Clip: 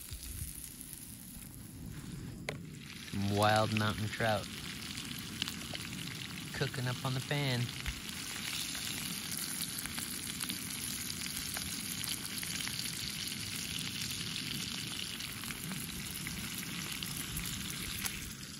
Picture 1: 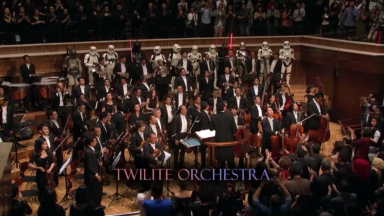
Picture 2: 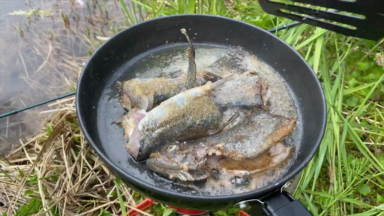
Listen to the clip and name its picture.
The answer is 2